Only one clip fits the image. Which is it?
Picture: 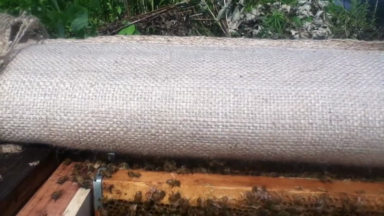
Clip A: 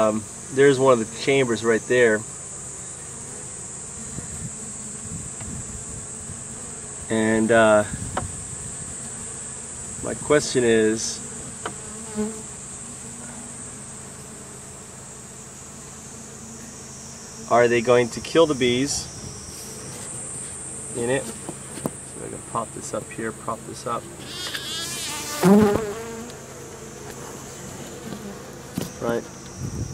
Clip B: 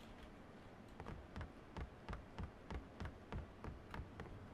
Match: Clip A